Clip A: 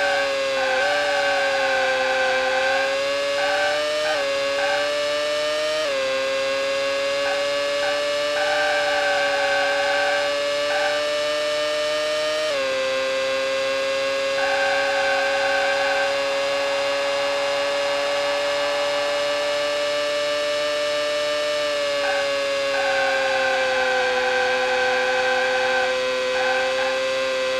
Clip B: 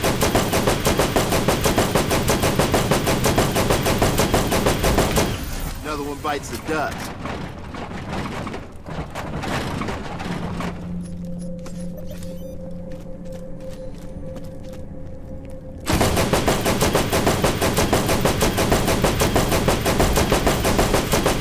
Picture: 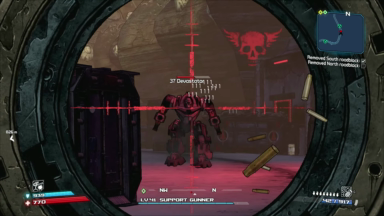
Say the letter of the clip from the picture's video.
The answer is B